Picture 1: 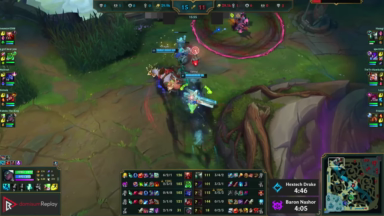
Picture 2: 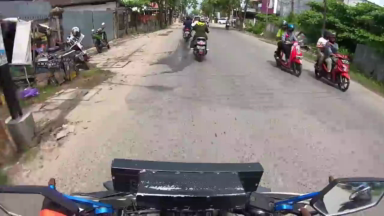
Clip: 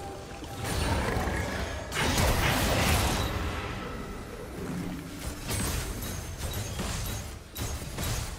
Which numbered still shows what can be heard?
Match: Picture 1